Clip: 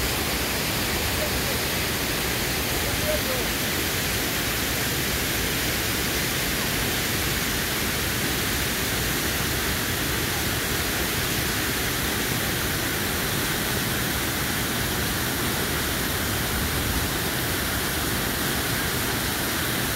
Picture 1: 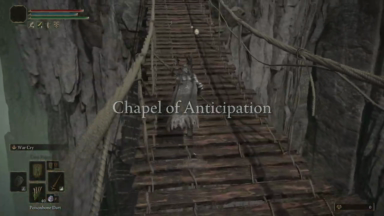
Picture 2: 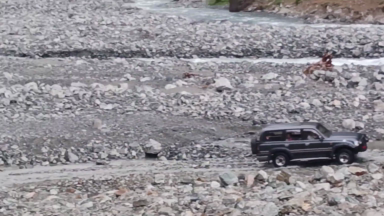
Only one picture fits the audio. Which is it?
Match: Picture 2